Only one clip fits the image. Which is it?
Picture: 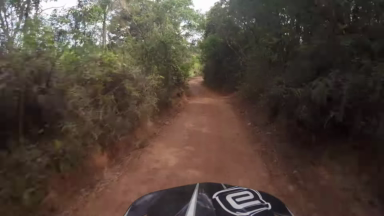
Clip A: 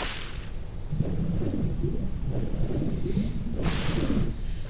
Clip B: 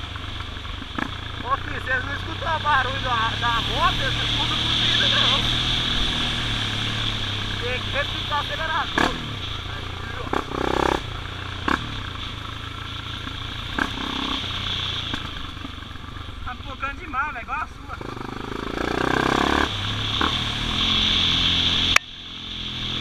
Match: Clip B